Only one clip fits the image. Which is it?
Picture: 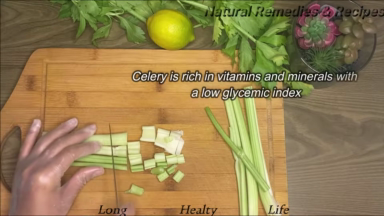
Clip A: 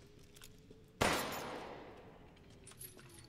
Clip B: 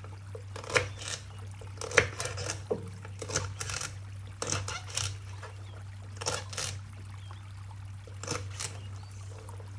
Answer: B